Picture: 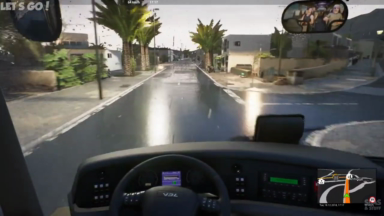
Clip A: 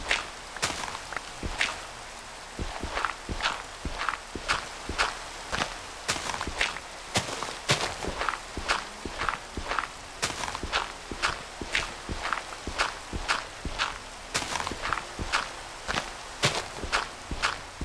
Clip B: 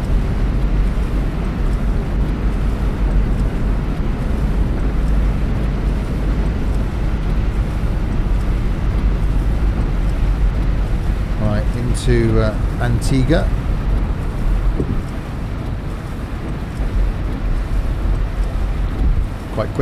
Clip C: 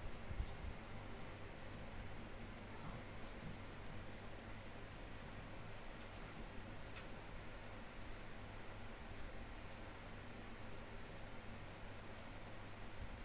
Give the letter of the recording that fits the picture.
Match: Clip B